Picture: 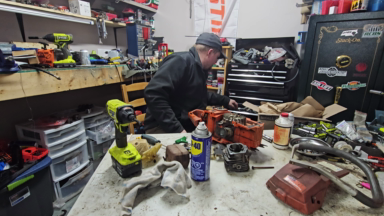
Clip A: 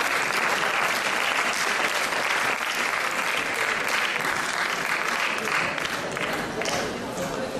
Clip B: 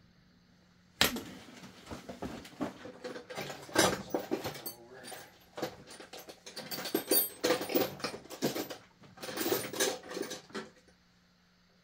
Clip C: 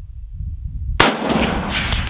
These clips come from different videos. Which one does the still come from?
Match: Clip B